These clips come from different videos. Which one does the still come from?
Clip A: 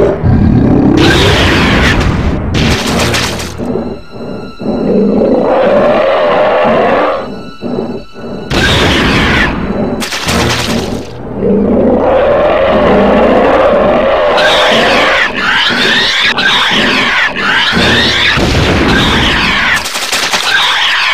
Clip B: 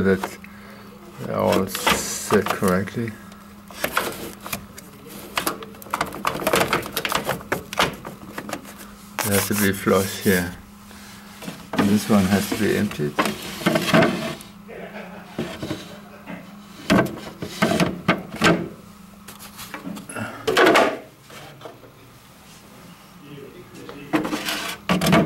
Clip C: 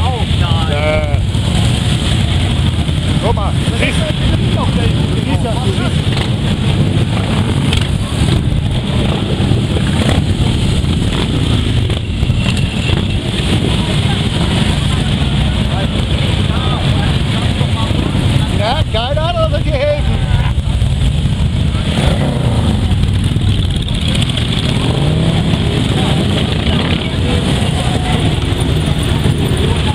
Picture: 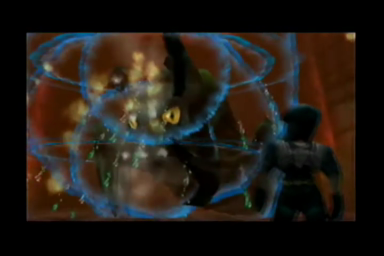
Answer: A